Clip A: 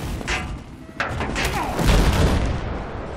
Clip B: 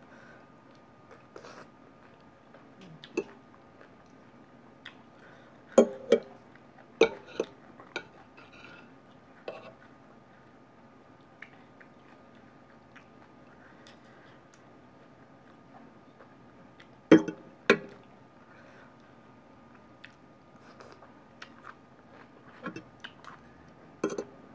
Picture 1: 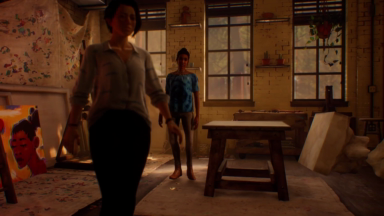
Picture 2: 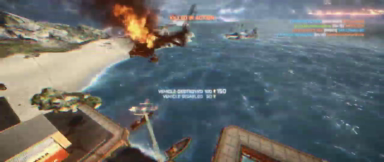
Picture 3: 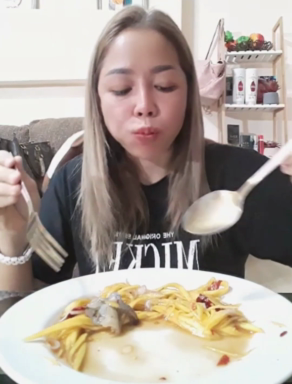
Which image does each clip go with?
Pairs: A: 2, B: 3